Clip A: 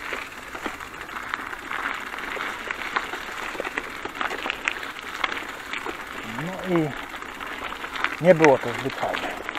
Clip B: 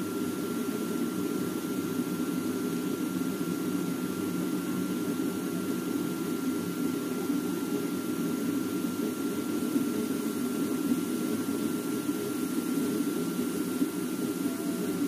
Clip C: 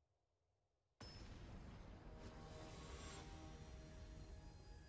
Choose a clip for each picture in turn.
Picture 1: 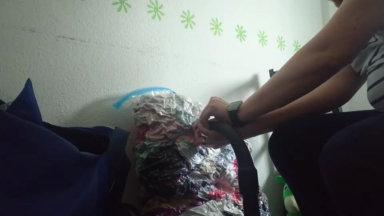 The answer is B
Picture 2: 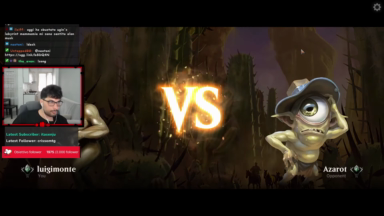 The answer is C